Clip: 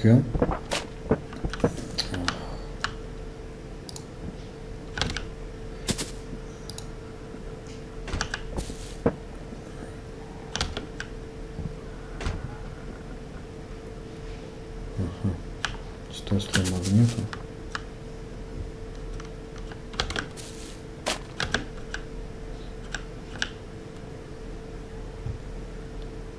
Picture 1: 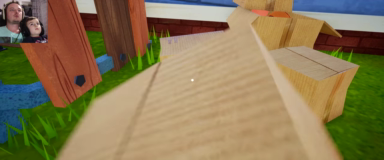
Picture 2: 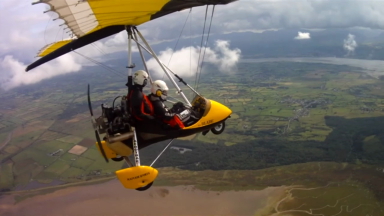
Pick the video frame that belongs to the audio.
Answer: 1